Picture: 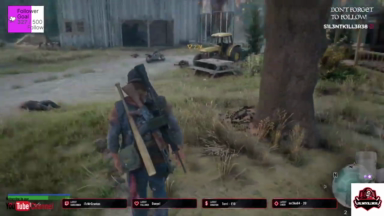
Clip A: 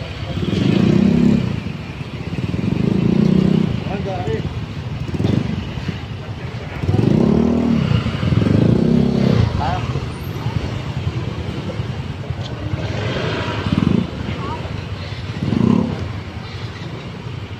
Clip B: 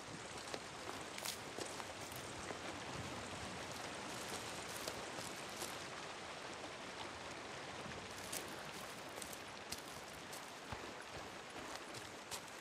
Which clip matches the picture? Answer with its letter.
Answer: B